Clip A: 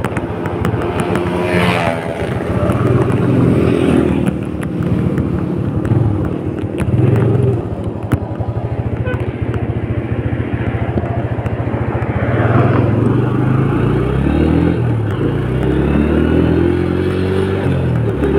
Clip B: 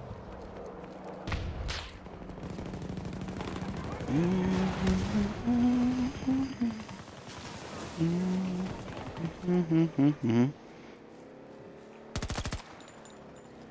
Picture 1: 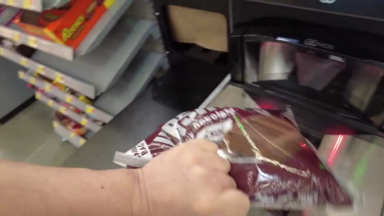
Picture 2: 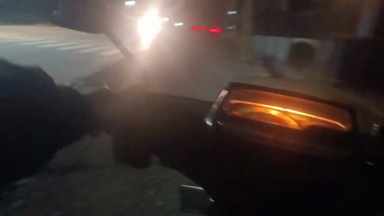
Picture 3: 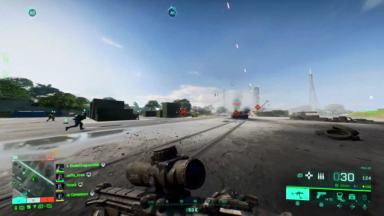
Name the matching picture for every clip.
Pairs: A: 2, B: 3